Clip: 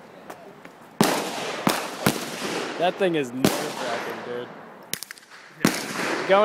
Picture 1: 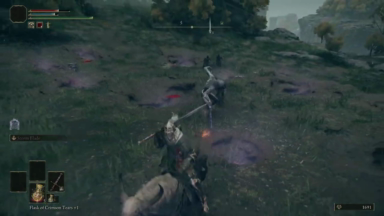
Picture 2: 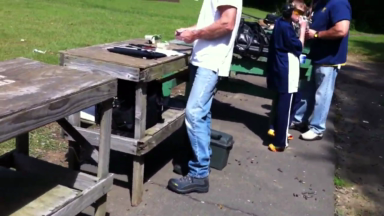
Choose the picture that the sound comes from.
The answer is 2